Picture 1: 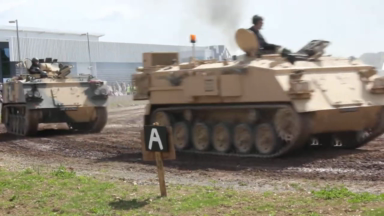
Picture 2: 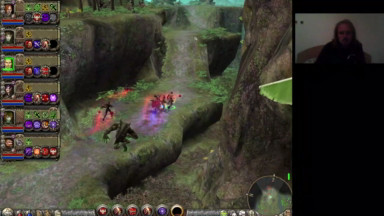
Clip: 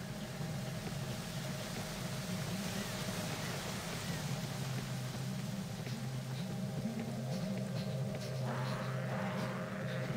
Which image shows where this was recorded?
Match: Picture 2